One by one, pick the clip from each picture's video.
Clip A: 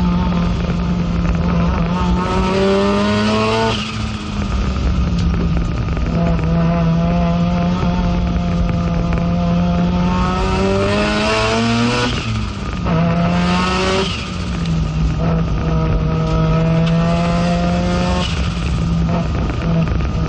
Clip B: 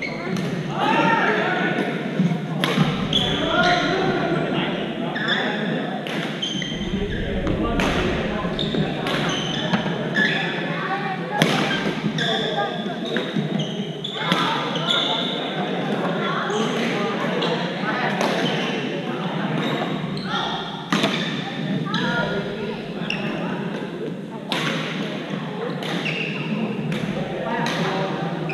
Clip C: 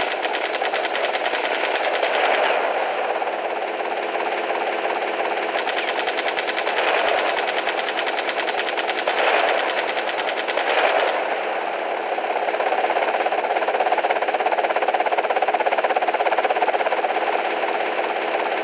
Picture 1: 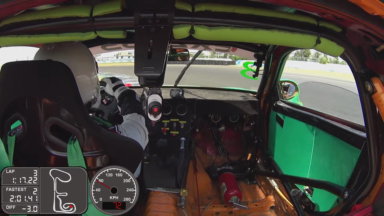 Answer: A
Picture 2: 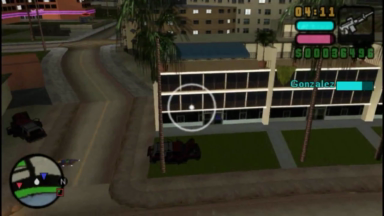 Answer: C